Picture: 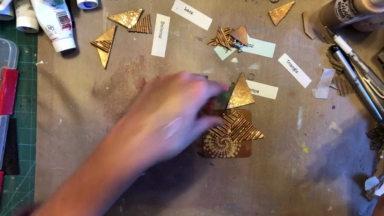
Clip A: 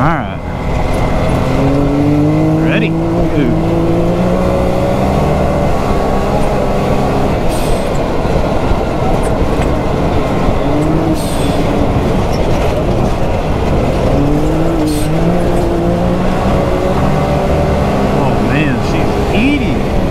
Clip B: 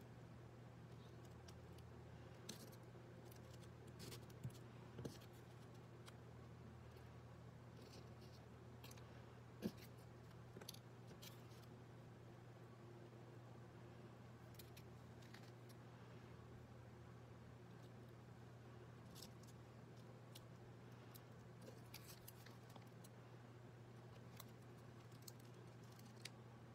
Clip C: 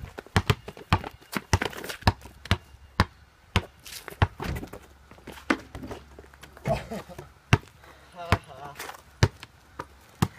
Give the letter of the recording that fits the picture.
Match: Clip B